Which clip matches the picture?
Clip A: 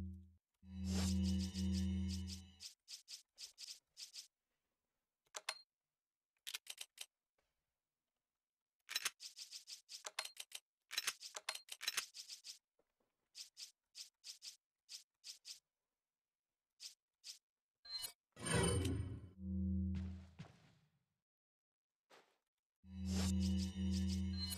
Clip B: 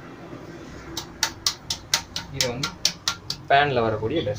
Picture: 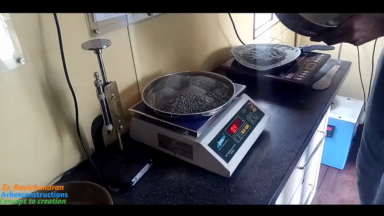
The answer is B